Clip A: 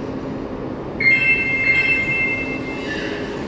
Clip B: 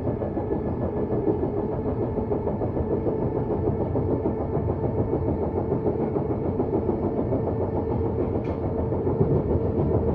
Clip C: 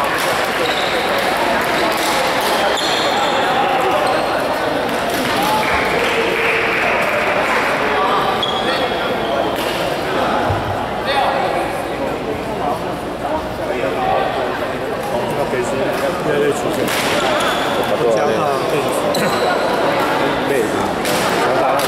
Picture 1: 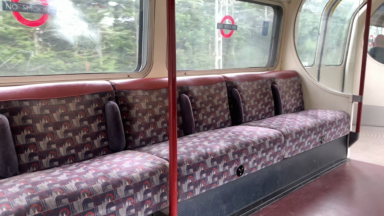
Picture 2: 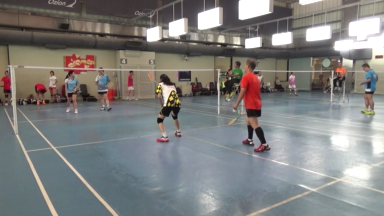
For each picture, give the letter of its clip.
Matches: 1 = B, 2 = C